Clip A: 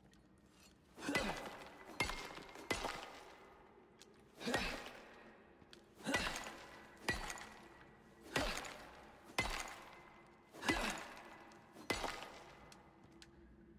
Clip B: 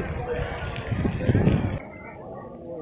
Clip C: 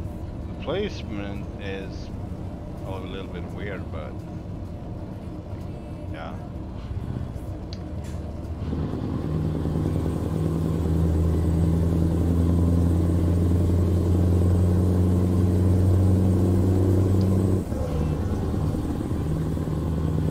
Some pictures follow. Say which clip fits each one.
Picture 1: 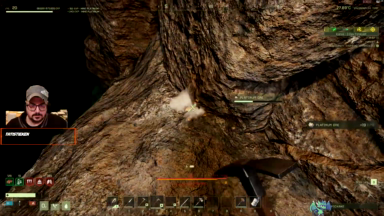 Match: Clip A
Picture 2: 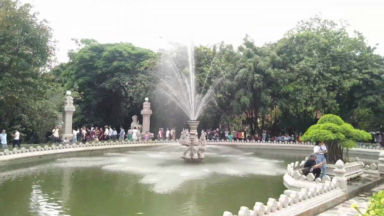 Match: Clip B